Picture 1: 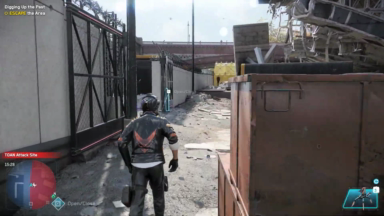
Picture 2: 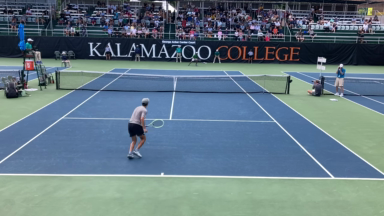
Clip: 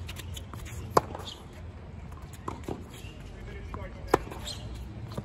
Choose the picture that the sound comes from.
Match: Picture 2